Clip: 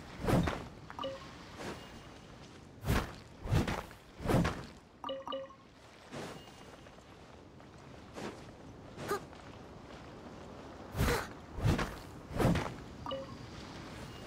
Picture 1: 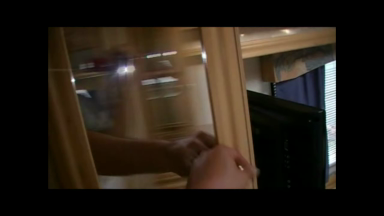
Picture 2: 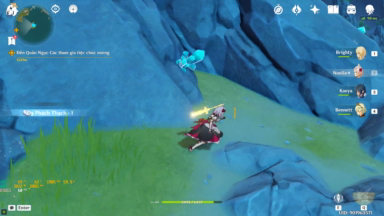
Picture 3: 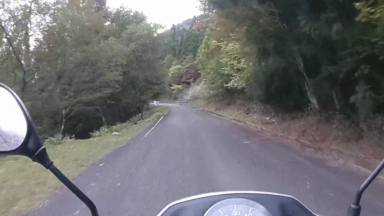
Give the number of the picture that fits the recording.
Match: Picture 2